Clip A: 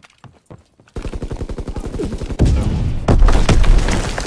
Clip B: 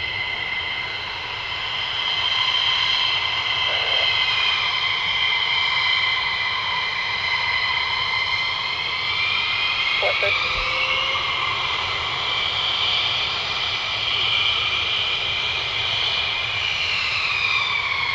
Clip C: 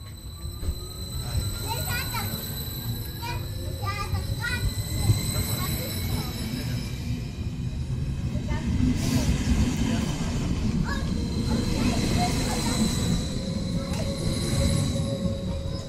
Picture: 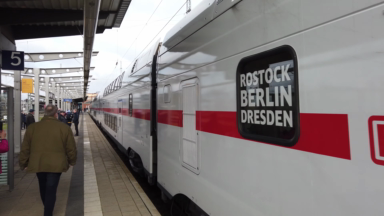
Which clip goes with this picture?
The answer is C